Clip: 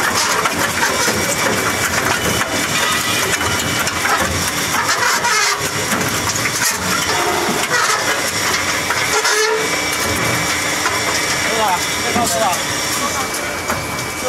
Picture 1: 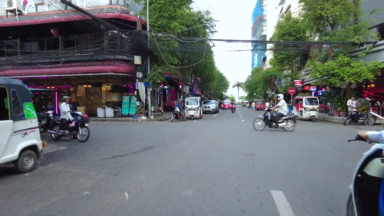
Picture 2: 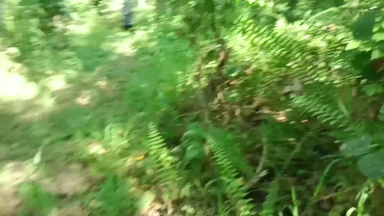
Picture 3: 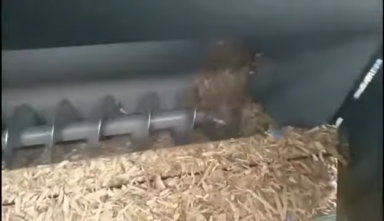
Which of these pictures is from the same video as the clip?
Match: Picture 3